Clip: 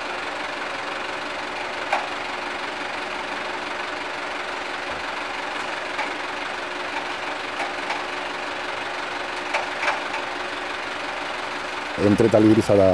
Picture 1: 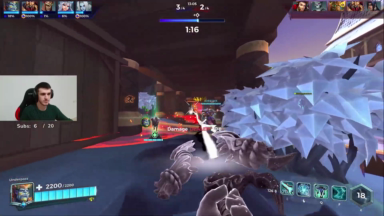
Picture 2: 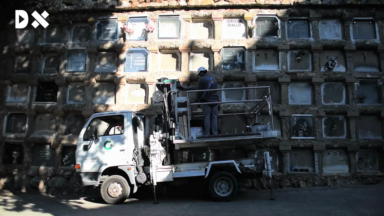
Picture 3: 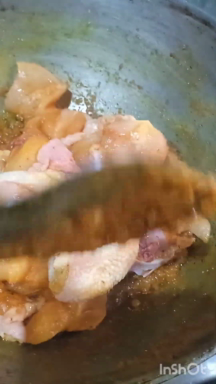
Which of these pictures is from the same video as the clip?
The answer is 2